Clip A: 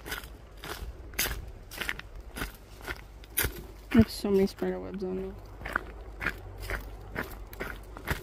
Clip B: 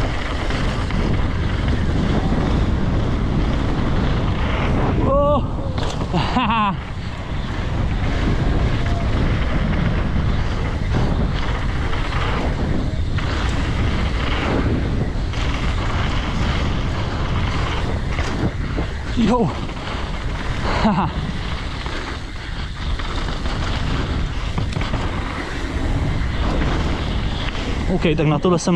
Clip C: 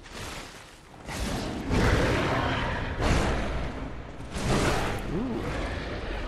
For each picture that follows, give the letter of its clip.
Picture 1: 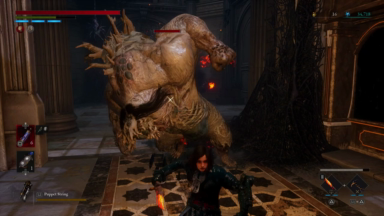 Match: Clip C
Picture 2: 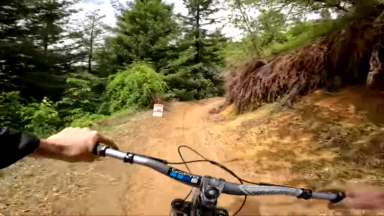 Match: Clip B